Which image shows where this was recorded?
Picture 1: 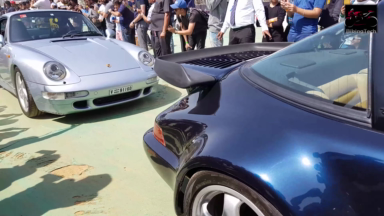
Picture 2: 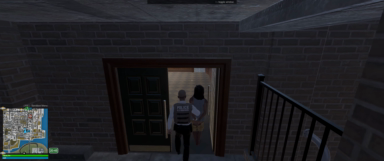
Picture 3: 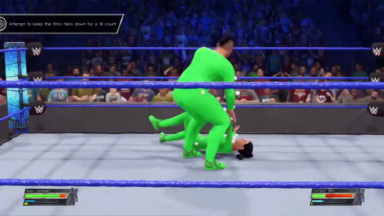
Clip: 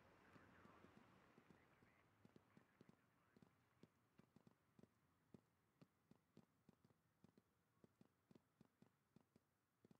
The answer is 2